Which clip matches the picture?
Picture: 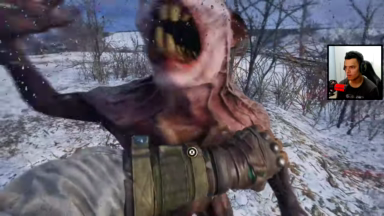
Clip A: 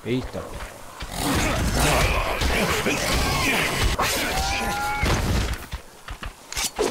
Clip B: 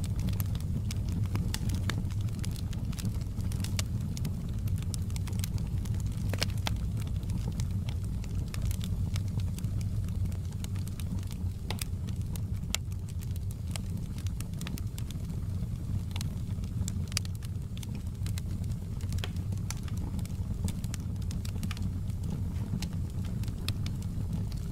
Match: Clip A